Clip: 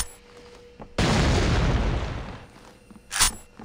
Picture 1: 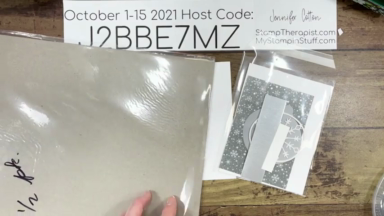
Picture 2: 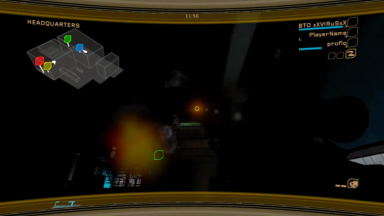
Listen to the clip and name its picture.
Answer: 2